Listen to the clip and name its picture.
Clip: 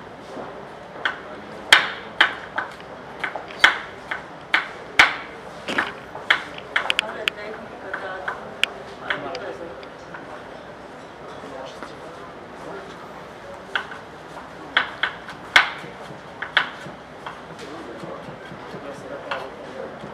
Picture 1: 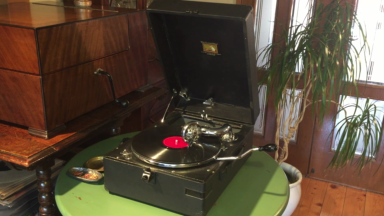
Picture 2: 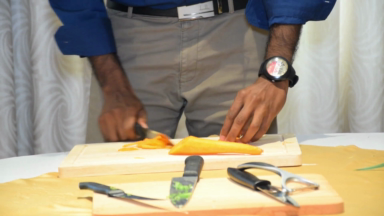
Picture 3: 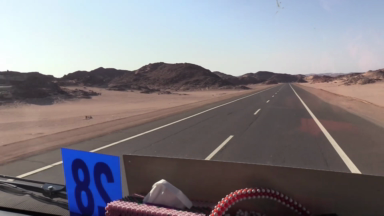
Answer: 2